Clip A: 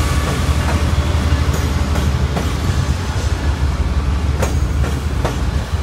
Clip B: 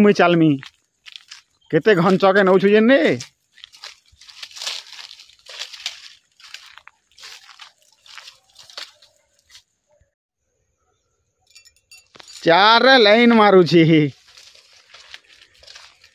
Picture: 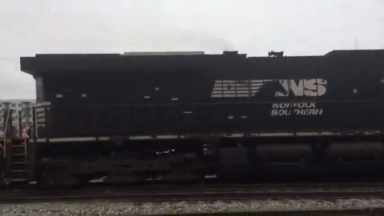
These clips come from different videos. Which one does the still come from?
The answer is A